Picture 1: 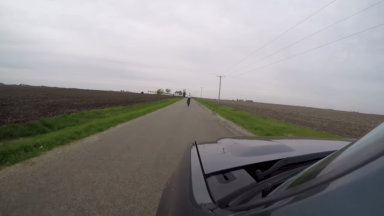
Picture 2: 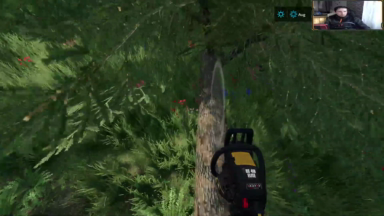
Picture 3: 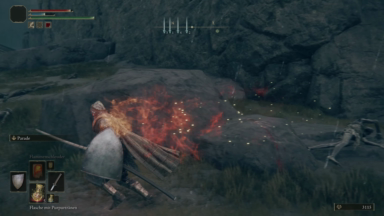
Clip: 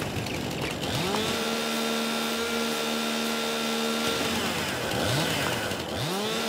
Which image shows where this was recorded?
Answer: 2